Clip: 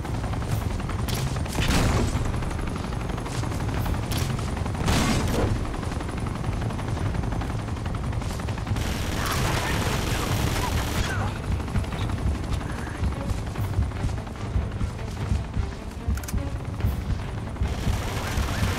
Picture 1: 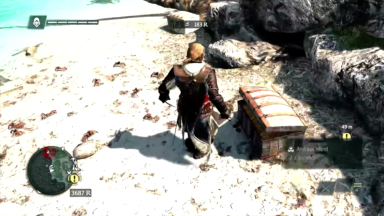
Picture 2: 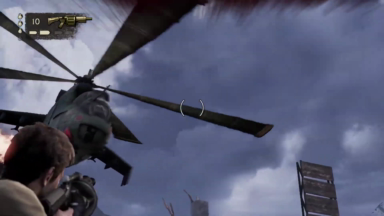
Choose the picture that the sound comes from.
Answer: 2